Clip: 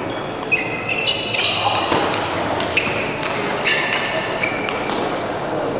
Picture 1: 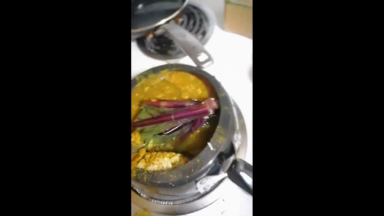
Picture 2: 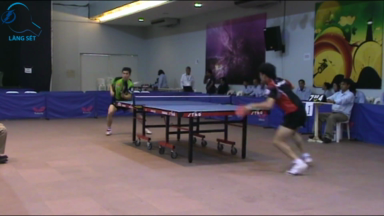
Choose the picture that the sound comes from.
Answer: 2